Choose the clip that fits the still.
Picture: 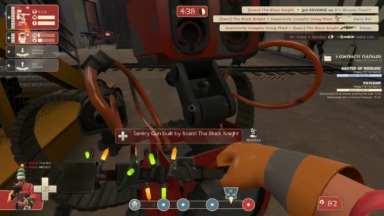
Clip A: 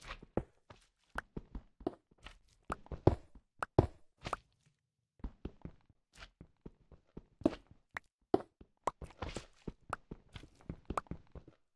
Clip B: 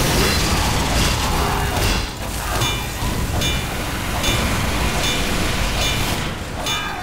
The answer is B